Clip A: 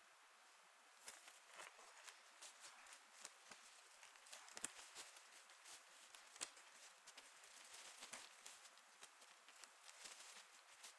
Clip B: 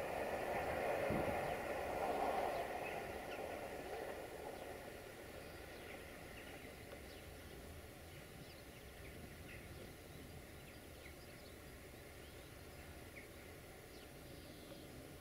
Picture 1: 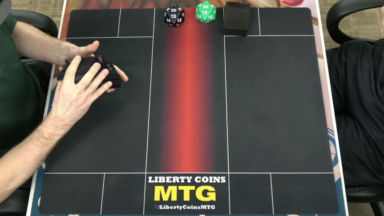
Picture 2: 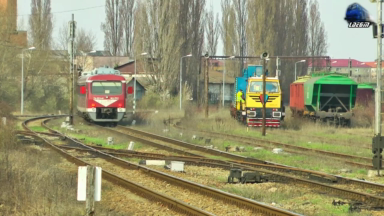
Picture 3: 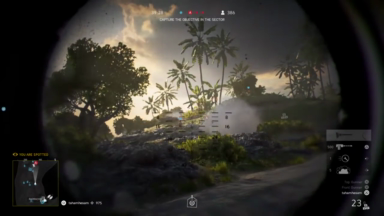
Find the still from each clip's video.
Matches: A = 1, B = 2